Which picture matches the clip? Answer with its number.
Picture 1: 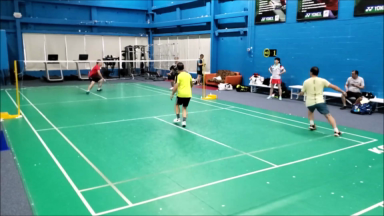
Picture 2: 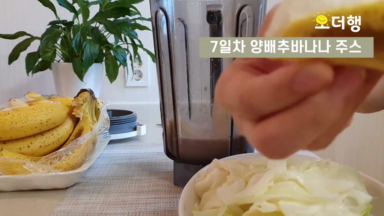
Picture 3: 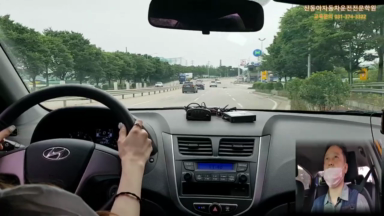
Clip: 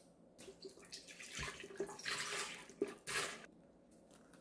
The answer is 2